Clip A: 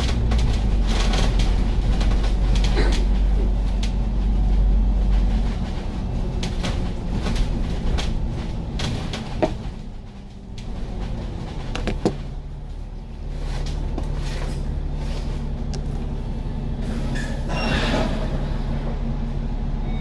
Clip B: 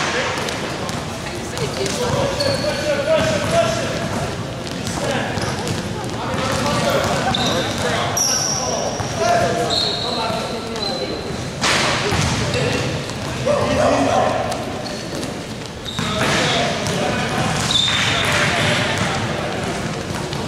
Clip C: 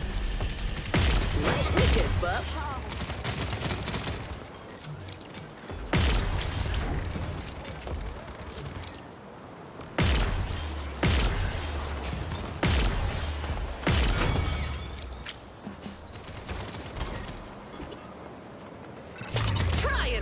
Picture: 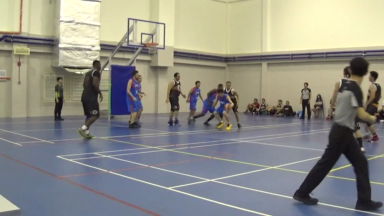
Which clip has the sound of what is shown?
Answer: B